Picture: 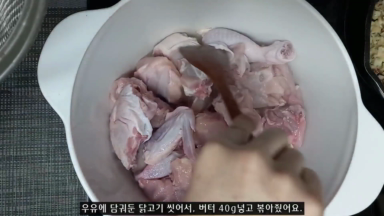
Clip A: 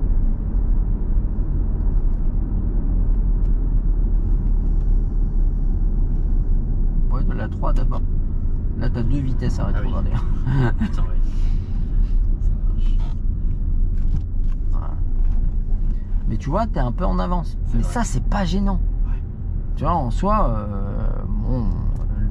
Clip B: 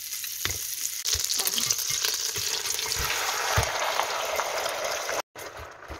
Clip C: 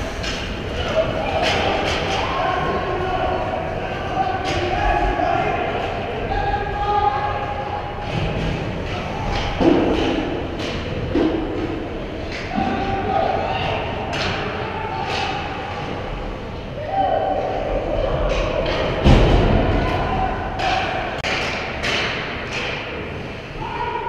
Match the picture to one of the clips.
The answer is B